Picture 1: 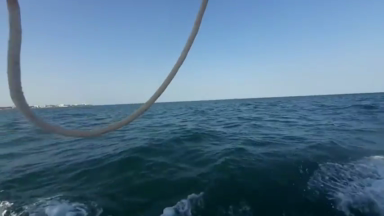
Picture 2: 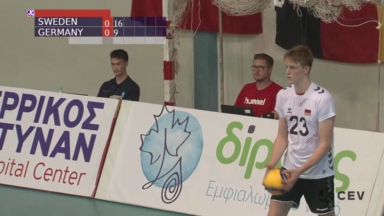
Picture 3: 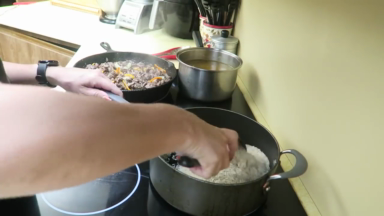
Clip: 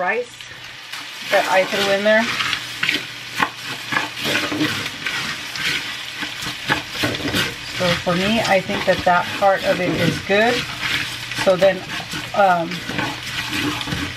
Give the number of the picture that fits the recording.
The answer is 3